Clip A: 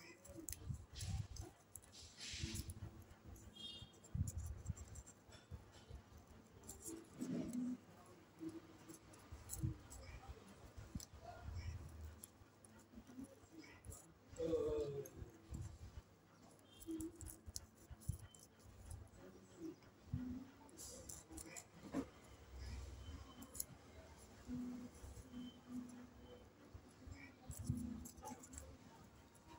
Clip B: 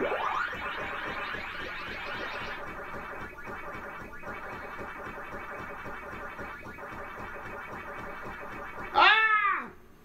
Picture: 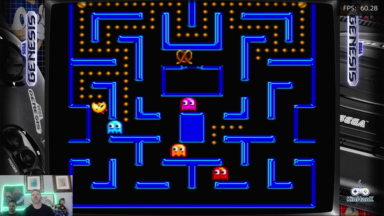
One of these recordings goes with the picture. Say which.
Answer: B